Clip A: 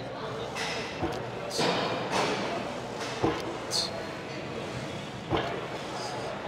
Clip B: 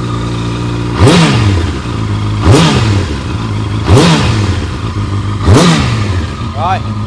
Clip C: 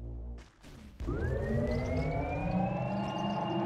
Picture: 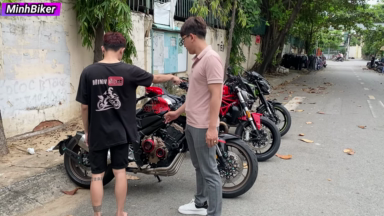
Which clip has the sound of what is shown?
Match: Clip B